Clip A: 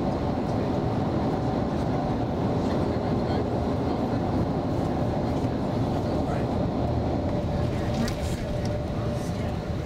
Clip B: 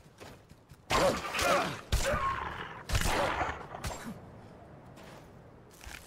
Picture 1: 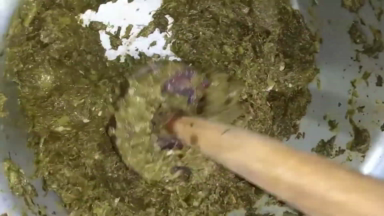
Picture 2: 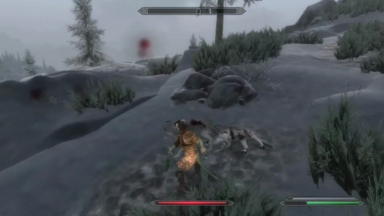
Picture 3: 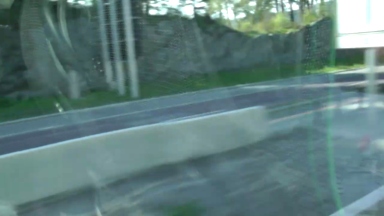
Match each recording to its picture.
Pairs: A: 3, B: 2